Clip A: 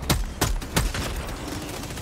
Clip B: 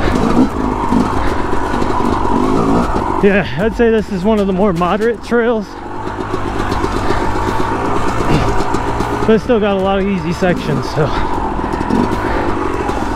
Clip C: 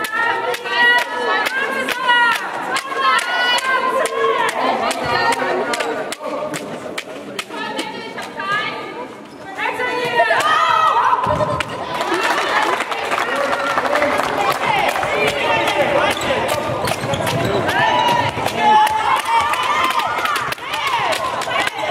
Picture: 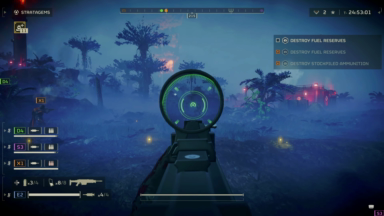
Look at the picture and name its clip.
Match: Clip A